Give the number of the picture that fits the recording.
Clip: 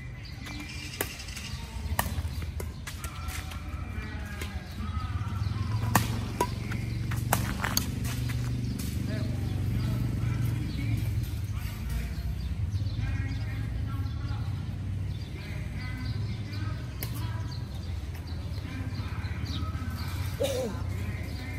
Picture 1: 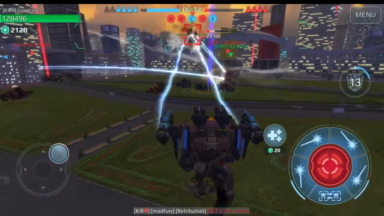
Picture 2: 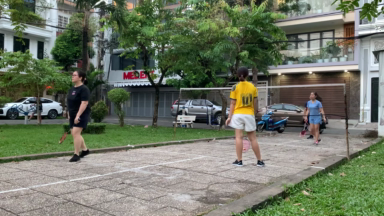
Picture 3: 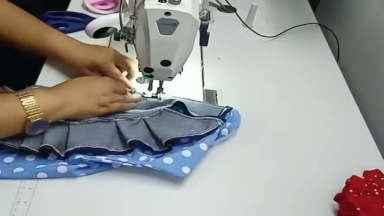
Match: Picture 2